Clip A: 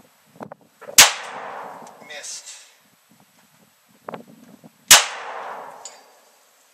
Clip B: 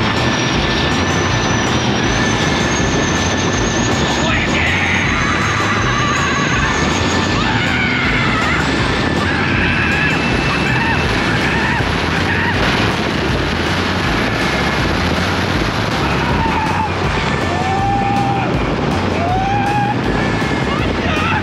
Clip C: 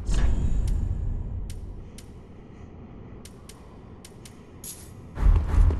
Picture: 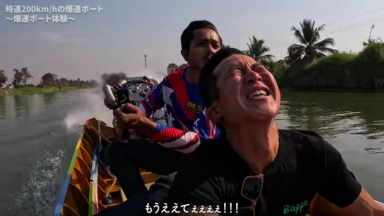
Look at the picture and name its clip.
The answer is B